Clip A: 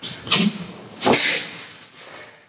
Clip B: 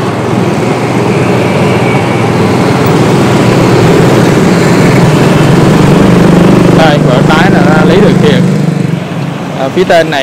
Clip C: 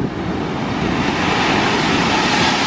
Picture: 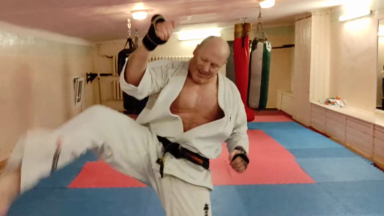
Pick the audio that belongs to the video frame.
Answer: A